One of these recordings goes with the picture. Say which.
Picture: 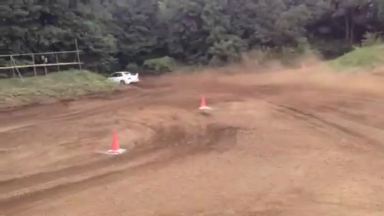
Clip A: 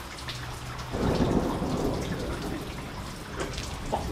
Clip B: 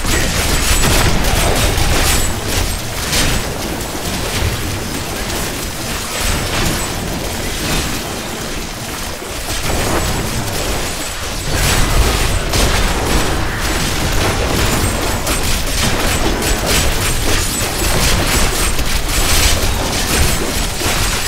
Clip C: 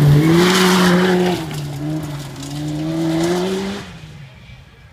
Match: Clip C